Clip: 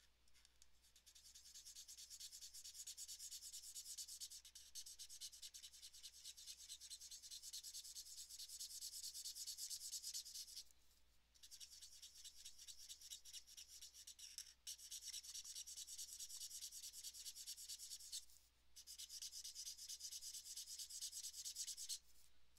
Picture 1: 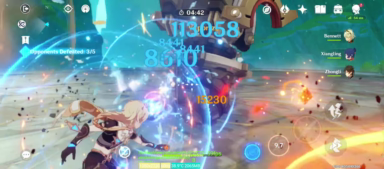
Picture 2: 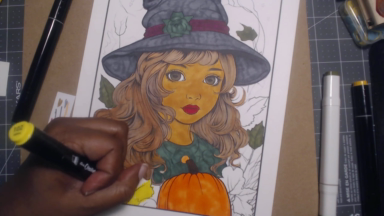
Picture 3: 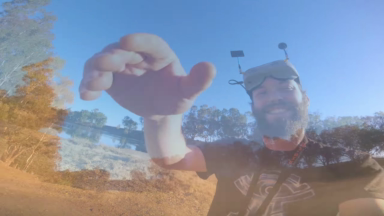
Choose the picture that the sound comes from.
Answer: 2